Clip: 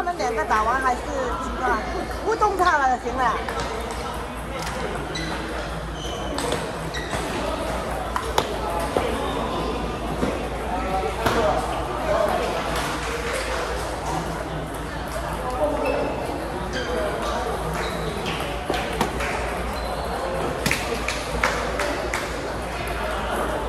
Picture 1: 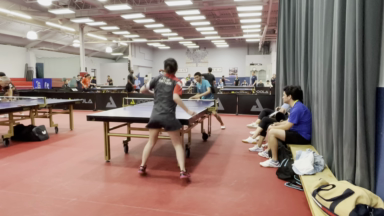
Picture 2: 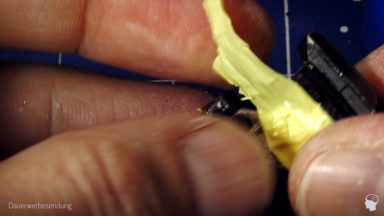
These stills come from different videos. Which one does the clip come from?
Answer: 1